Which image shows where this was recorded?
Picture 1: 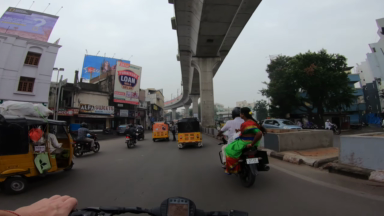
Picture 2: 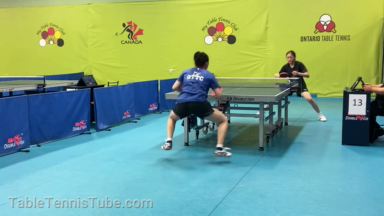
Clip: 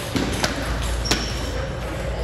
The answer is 2